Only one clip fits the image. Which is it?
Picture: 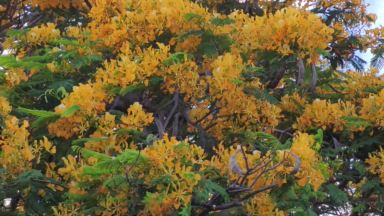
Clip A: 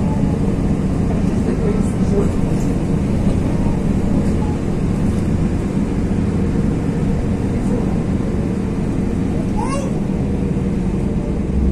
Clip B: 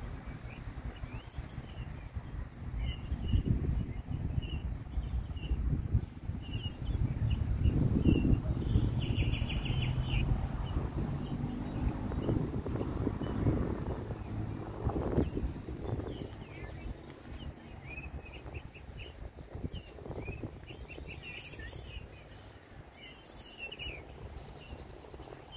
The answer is B